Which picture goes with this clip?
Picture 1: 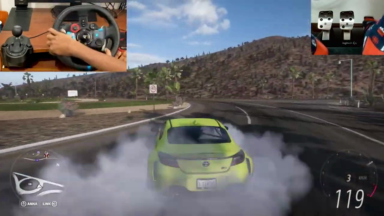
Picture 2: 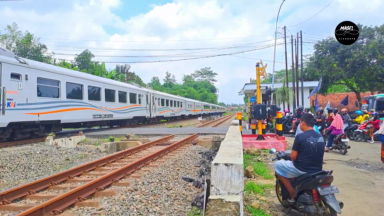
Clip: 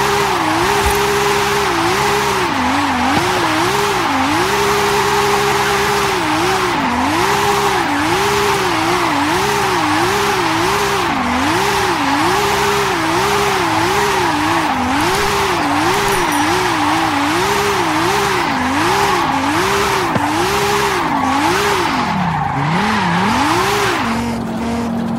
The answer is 1